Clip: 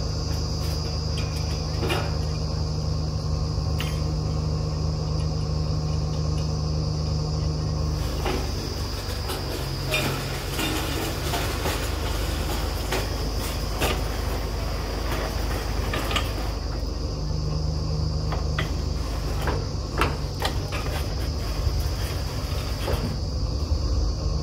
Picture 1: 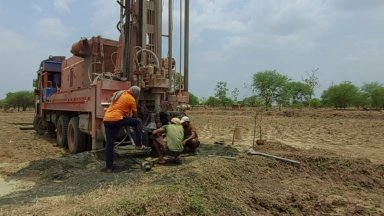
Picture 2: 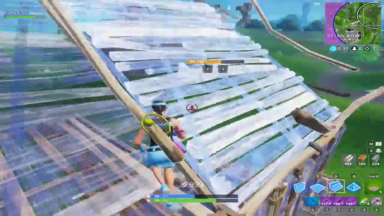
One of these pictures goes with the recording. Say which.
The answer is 1